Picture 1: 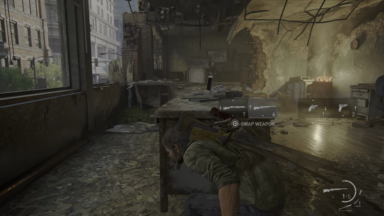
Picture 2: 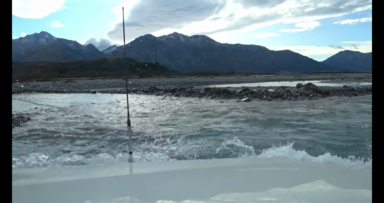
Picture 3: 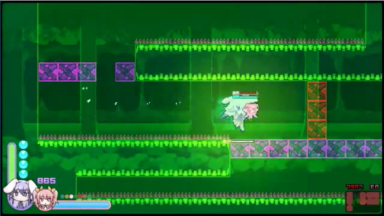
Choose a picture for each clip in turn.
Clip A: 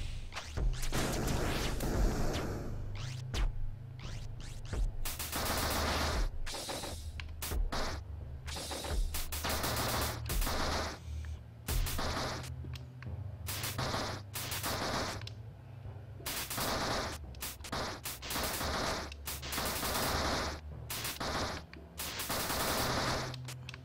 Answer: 3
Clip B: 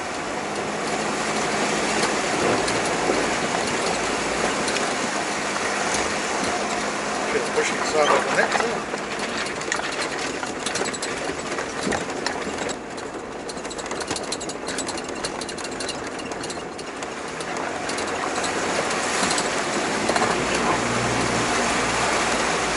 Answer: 2